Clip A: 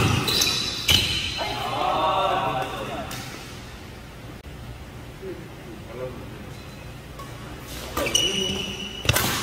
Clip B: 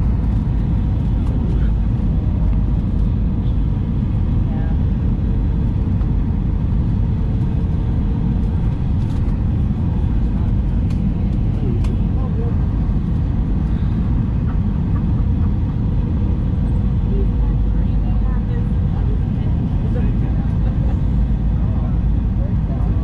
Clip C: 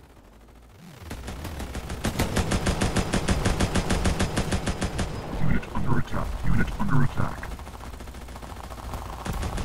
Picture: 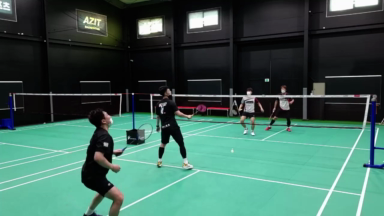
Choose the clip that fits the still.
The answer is A